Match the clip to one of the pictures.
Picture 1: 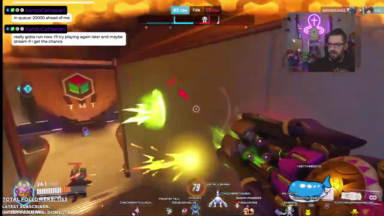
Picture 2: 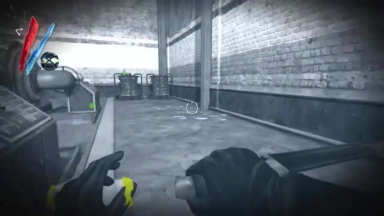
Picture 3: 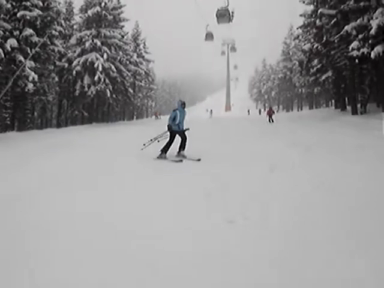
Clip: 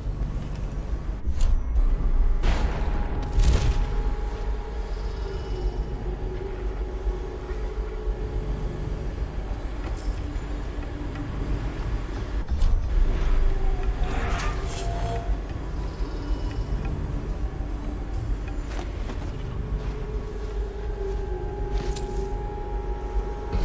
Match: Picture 2